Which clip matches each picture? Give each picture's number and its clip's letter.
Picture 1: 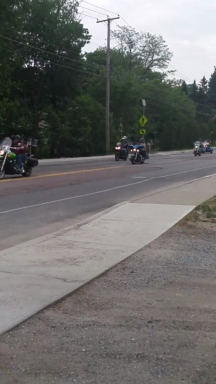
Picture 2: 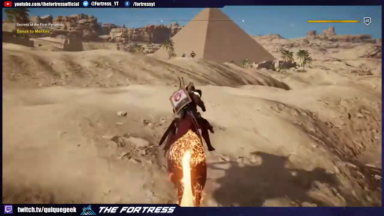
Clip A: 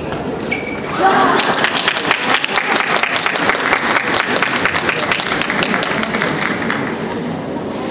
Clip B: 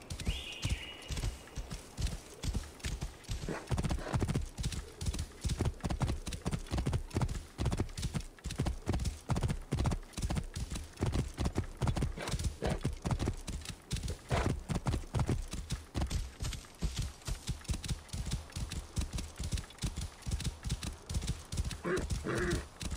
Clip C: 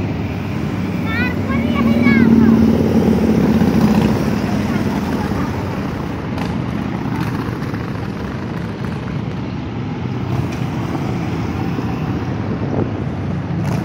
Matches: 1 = C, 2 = B